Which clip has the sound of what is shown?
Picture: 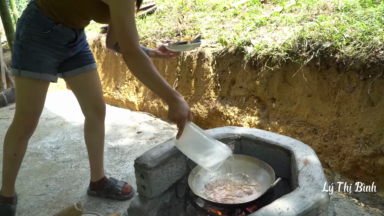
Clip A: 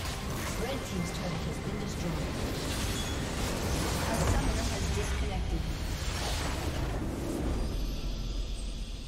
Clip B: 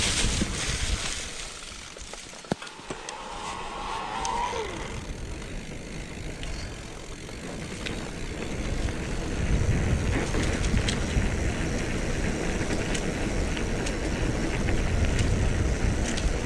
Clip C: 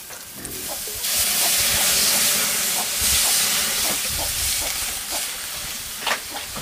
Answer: C